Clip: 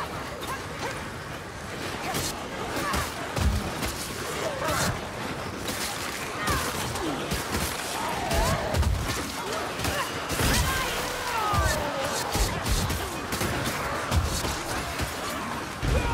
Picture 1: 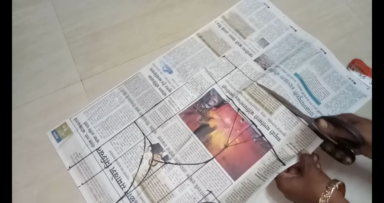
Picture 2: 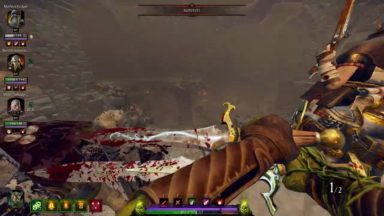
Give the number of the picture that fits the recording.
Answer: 2